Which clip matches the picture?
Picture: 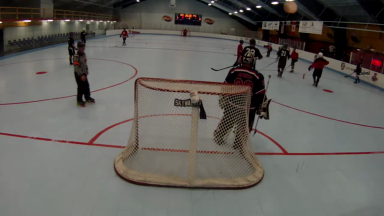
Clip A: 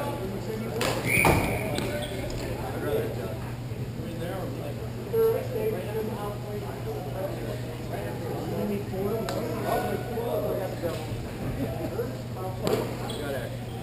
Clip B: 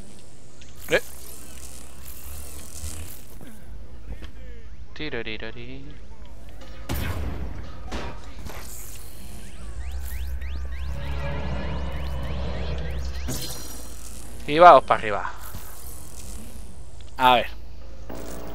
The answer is A